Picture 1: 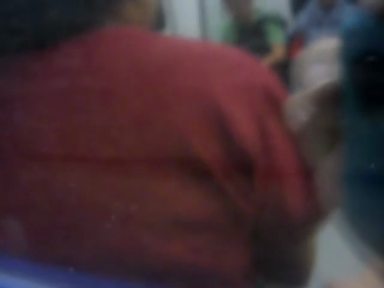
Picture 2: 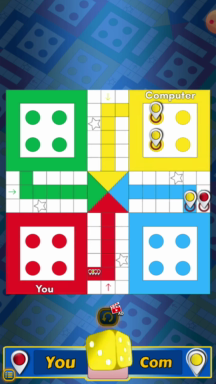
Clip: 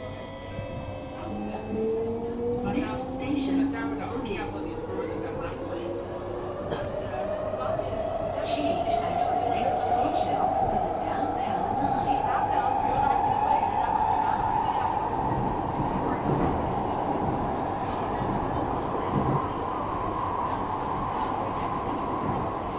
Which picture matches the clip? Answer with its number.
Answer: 1